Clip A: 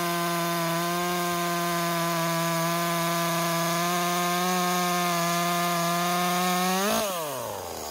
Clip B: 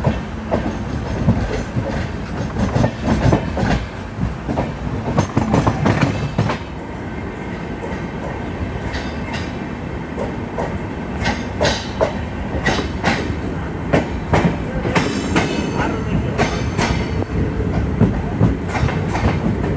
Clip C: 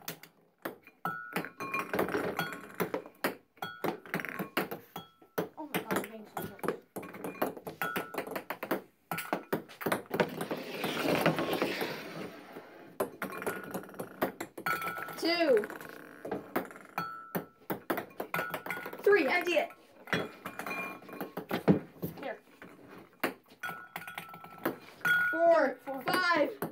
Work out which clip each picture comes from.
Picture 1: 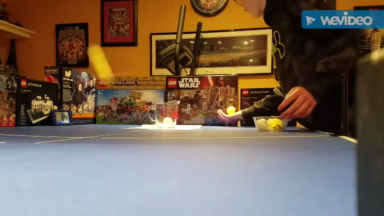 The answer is C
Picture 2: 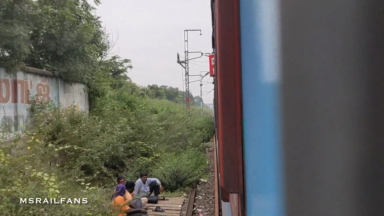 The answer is B